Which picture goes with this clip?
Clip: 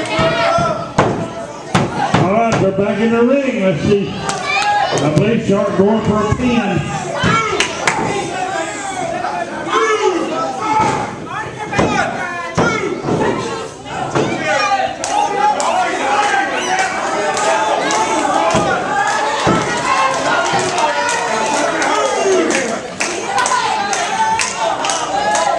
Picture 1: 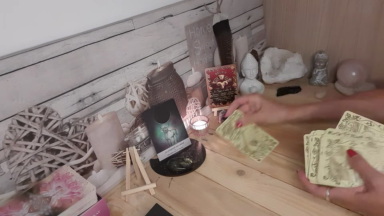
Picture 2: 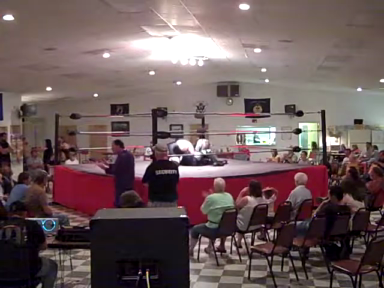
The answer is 2